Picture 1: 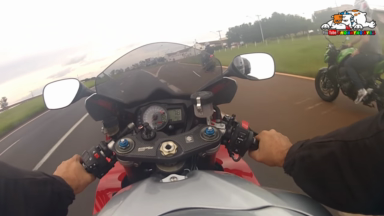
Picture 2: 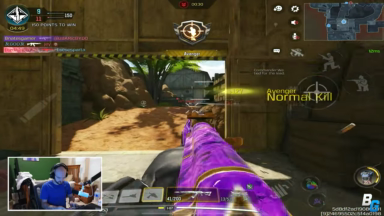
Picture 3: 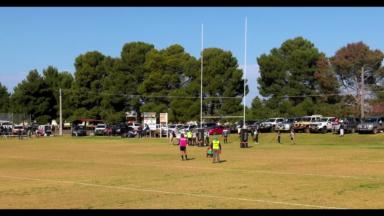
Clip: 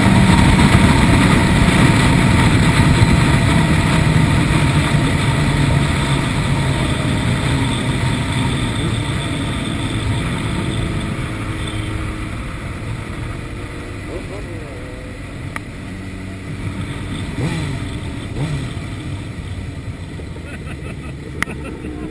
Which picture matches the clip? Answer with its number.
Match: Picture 1